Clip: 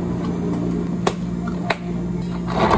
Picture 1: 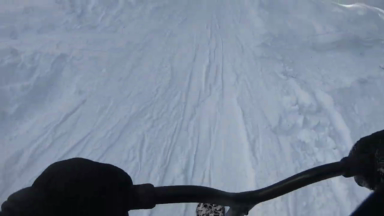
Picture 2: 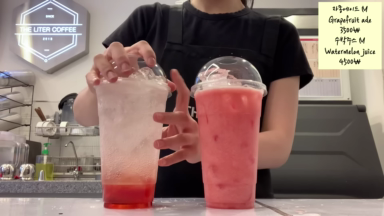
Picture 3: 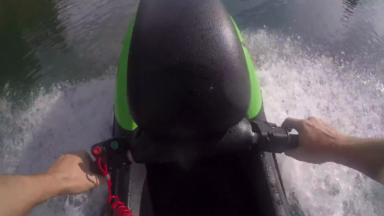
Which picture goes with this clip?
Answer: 2